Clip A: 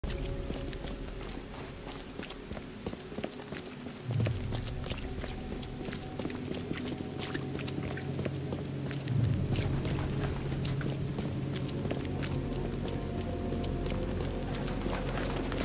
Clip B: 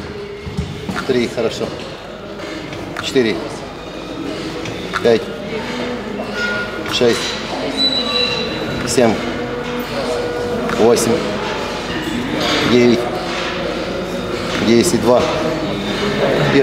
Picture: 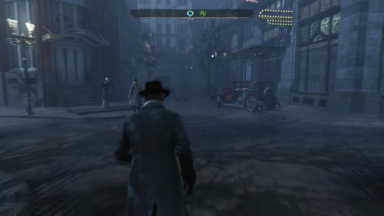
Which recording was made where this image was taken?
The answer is A